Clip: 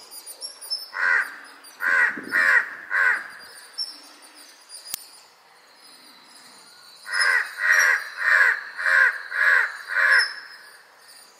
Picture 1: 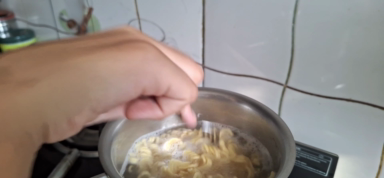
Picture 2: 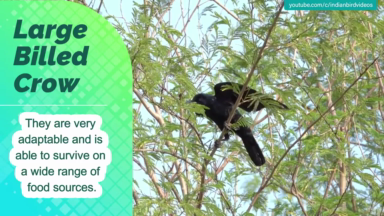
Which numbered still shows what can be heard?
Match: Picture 2